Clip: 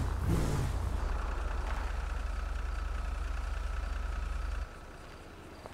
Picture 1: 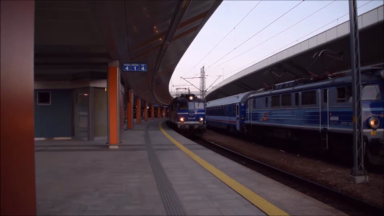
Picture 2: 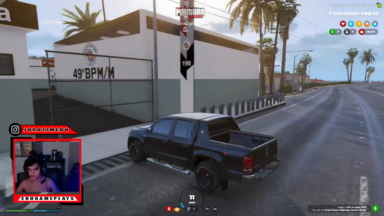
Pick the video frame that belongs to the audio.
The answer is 2